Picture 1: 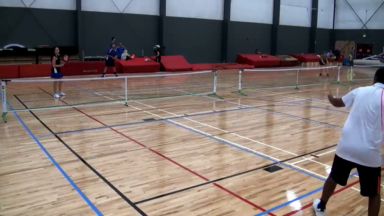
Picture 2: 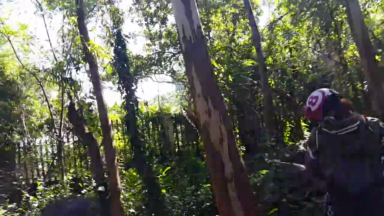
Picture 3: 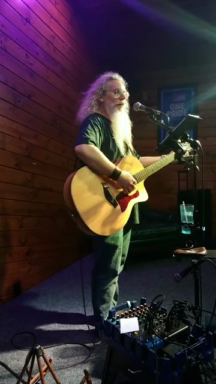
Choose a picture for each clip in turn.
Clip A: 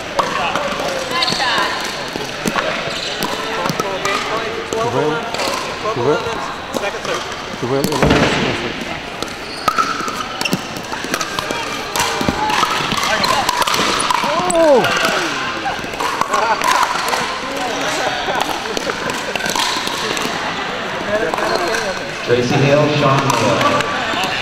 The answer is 1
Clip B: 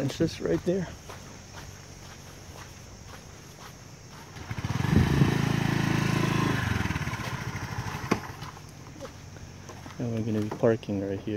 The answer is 2